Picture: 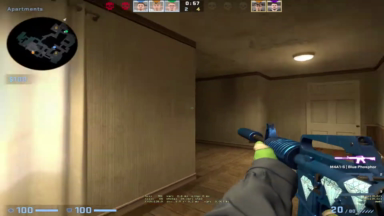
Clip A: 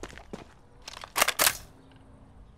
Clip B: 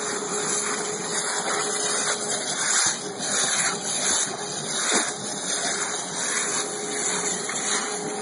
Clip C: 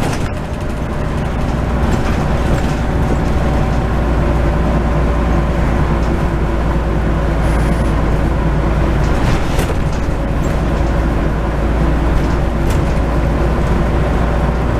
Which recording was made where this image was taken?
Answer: A